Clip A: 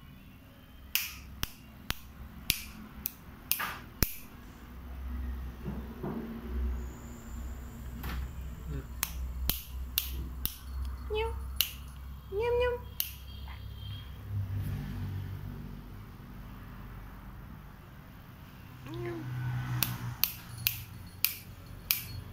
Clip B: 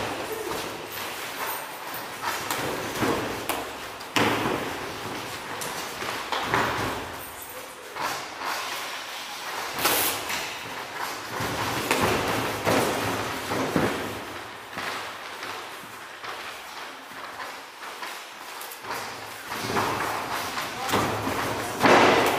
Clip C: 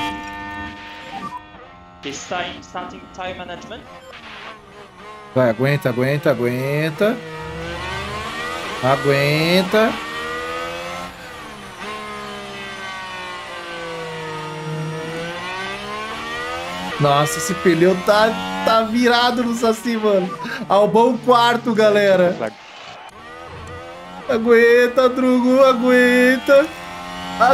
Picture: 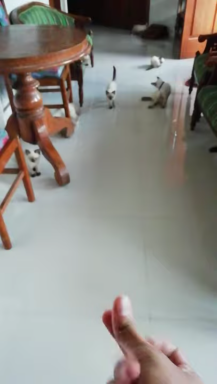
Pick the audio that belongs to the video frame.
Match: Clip A